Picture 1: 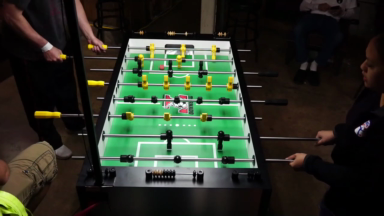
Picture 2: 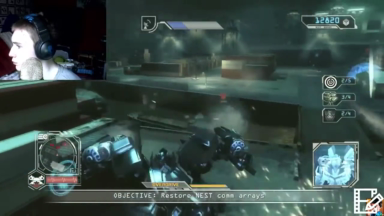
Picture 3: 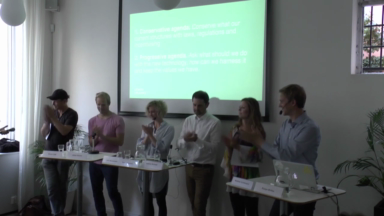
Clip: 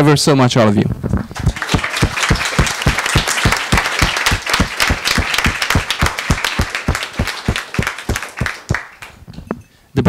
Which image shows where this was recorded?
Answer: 3